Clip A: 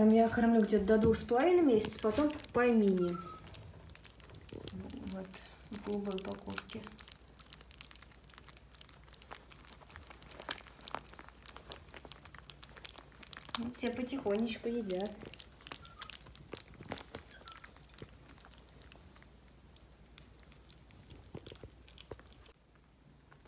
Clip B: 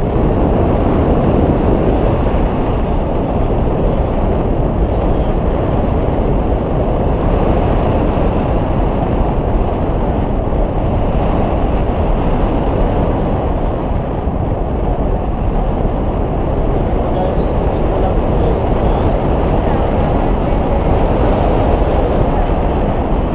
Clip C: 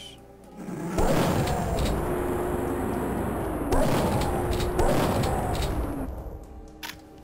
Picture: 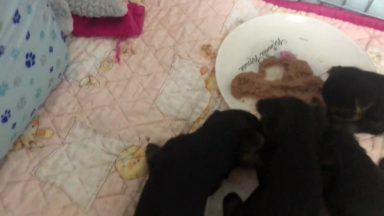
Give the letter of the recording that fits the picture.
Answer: A